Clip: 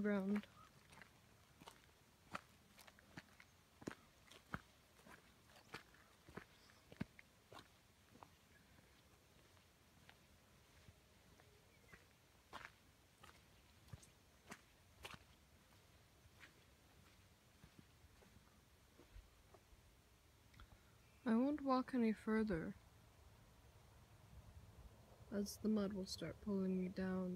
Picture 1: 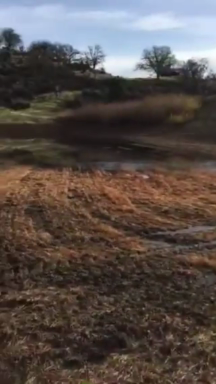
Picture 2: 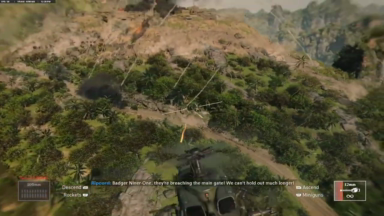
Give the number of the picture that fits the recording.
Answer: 1